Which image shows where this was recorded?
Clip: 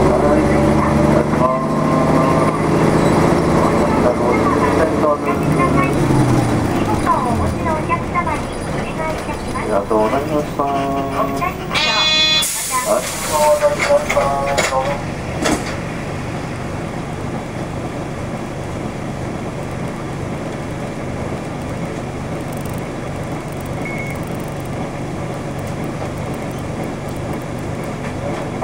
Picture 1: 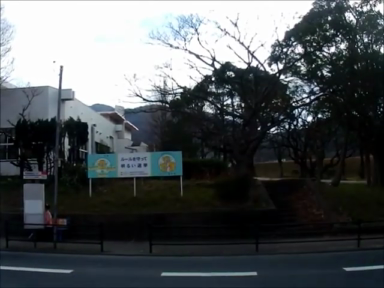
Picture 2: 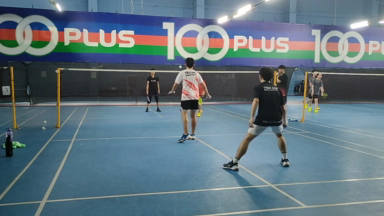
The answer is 1